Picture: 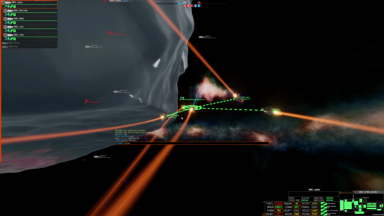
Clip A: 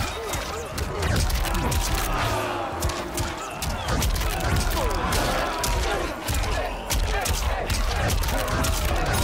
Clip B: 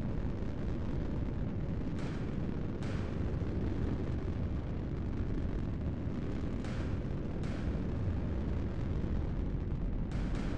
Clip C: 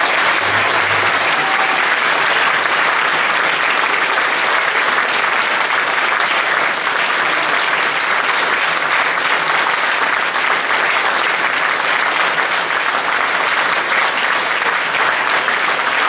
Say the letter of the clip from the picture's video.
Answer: B